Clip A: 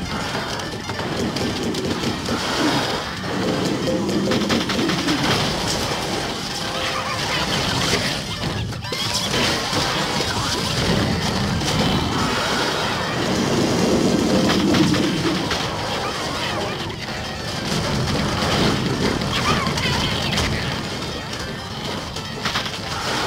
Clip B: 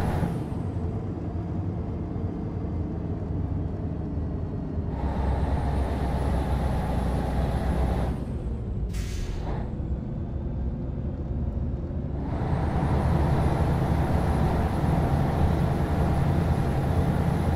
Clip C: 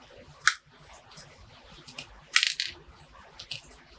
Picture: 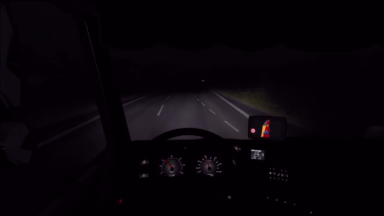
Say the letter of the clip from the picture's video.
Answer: B